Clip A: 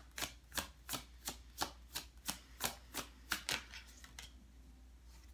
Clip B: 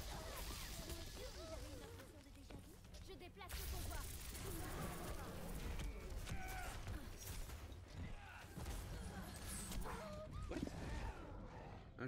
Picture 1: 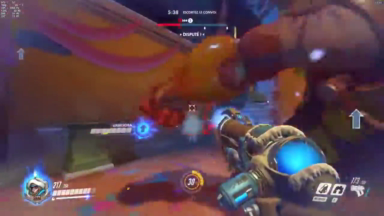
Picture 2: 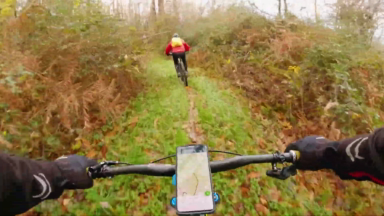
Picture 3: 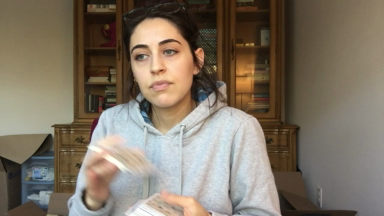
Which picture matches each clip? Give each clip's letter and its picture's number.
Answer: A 3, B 1